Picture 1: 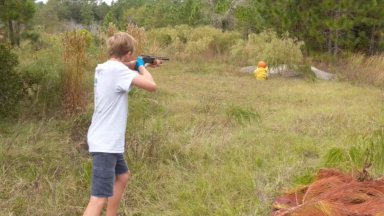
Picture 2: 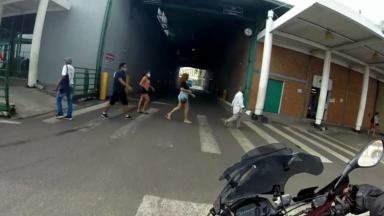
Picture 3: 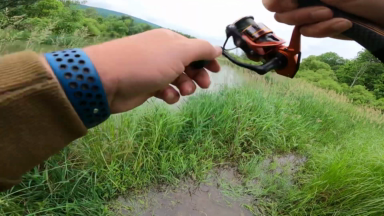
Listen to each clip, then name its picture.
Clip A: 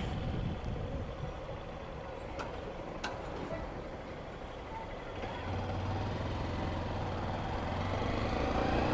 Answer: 2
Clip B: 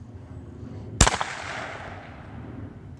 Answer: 1